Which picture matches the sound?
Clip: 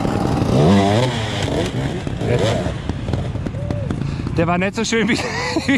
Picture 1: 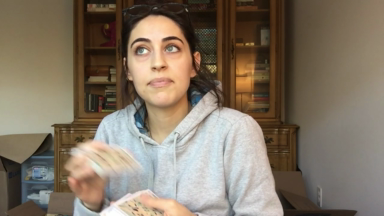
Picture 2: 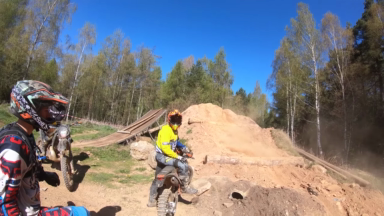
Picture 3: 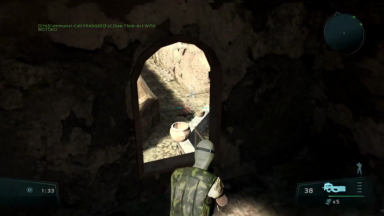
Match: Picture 2